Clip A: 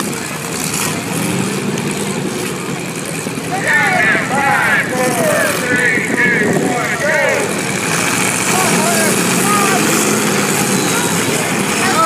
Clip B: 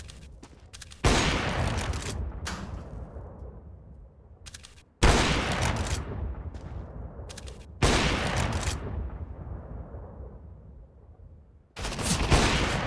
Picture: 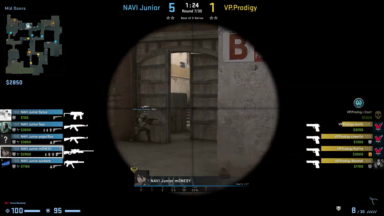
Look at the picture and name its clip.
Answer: B